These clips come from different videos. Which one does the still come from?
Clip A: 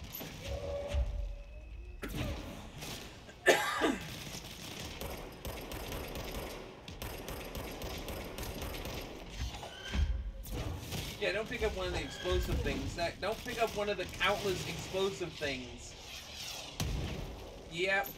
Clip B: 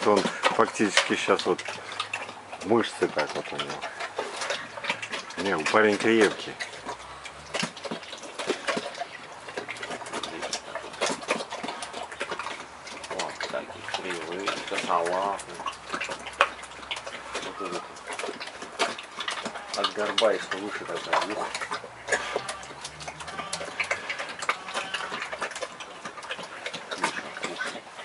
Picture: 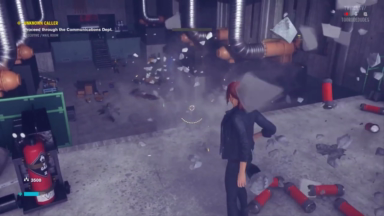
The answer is A